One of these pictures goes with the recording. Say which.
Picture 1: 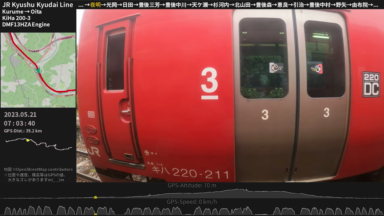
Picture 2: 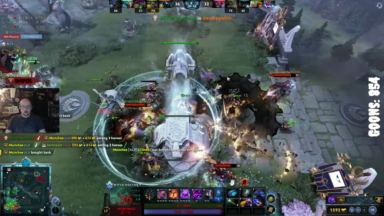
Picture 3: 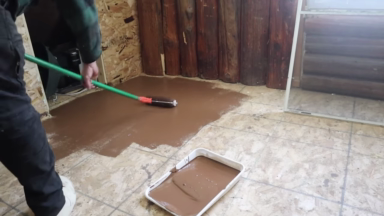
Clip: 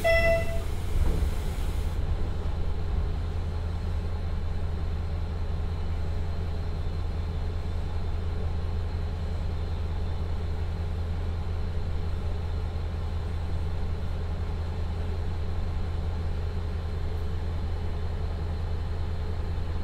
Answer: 1